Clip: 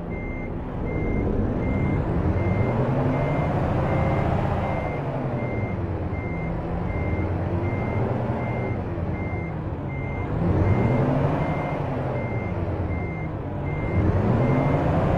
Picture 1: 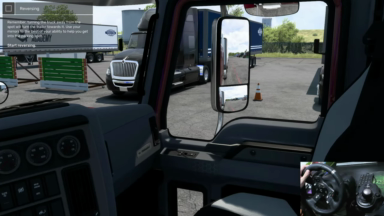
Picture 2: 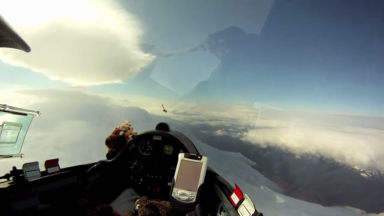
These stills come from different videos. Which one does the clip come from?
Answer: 1